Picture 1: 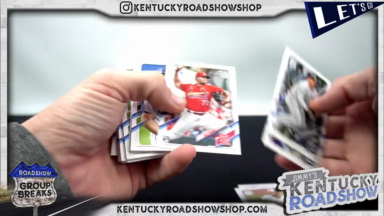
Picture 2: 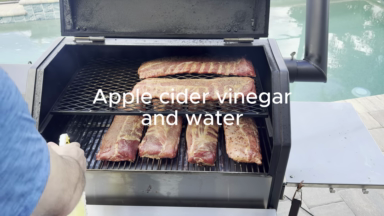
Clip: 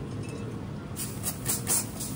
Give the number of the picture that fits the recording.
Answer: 2